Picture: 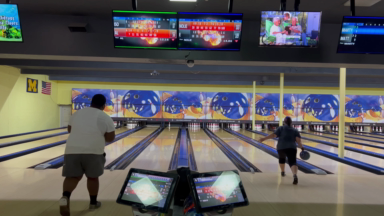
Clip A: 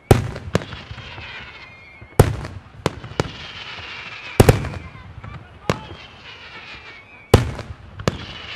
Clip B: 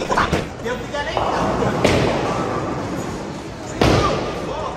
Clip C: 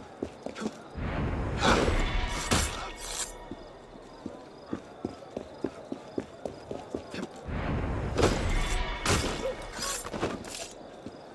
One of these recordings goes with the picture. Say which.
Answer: B